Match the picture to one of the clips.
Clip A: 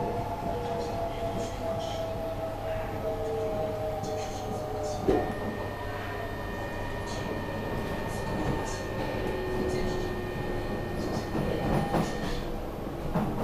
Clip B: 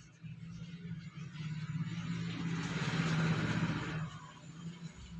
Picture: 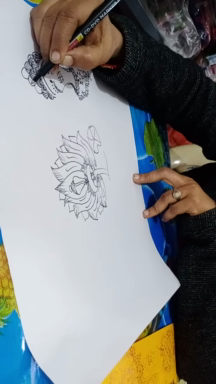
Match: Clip B